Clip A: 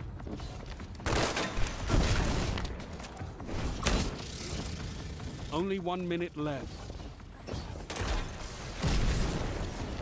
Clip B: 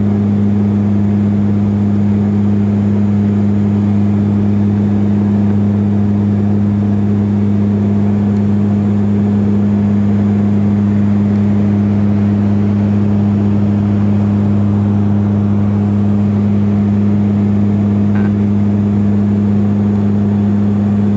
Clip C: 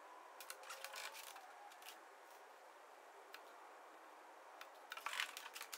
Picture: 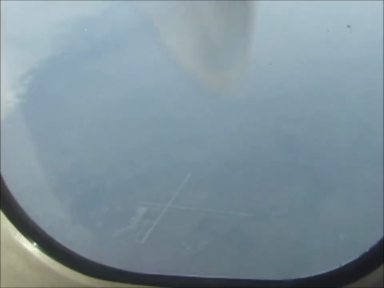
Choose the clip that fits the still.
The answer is B